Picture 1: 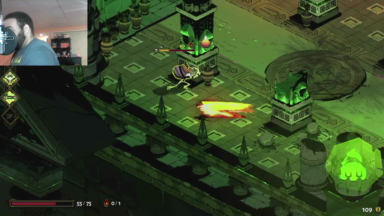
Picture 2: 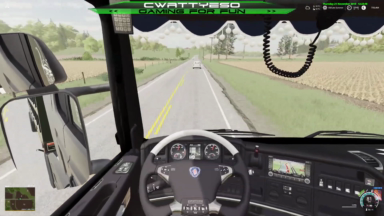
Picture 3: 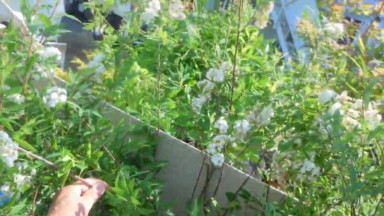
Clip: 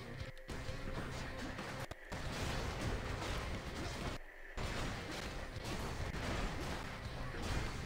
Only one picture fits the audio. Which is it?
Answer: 1